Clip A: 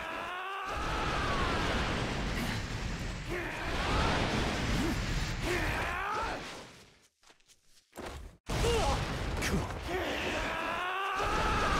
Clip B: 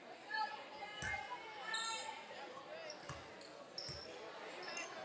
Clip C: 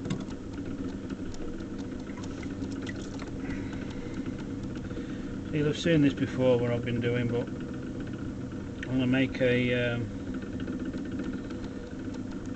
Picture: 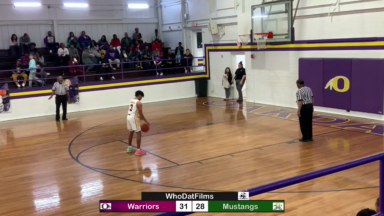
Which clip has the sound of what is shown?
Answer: B